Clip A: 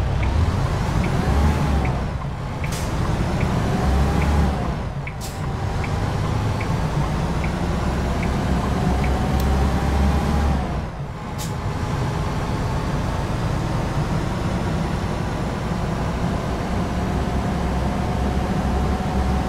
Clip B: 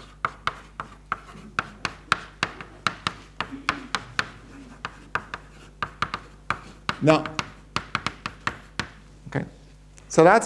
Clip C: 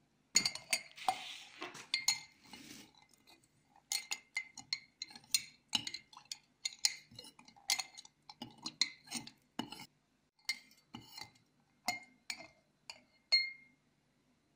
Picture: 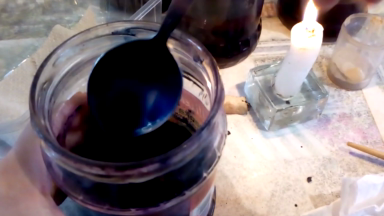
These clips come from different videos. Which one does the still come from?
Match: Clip C